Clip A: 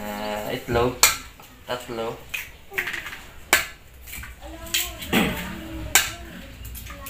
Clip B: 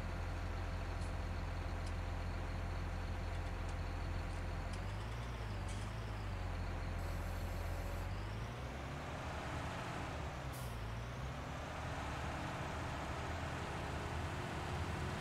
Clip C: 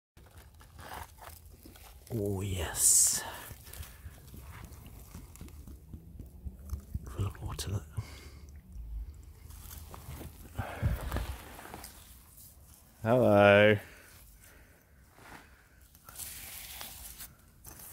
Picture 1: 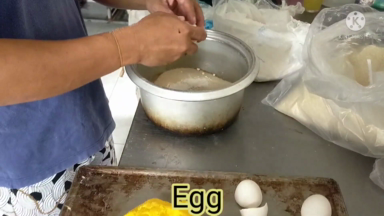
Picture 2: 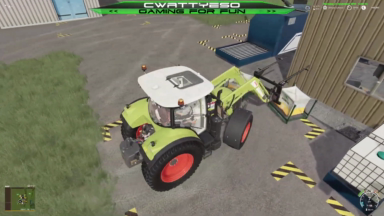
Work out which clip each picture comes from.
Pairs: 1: A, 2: B